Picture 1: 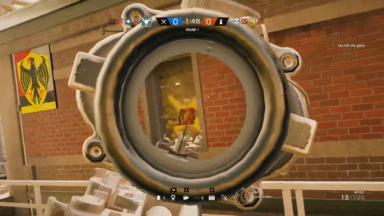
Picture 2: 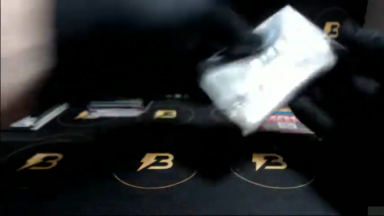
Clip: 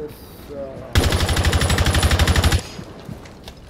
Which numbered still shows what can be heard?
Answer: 1